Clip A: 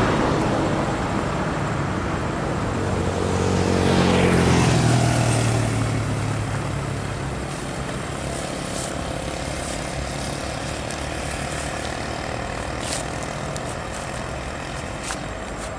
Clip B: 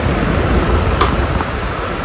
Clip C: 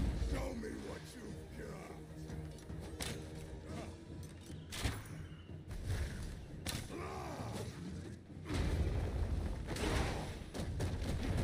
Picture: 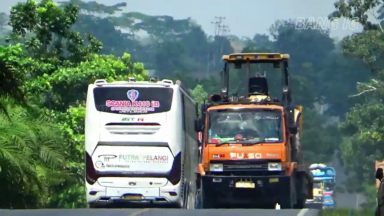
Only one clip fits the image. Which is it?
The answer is A